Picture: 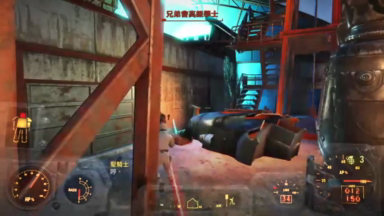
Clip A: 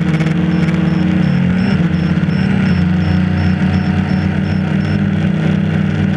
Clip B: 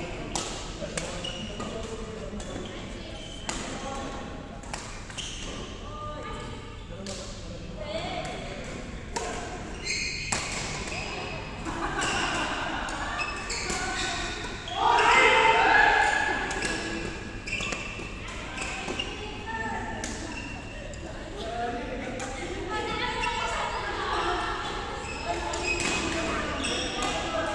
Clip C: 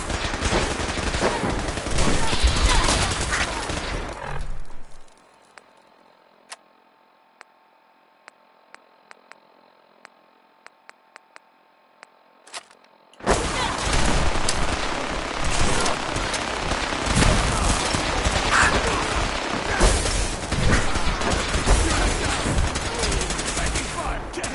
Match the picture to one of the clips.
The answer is C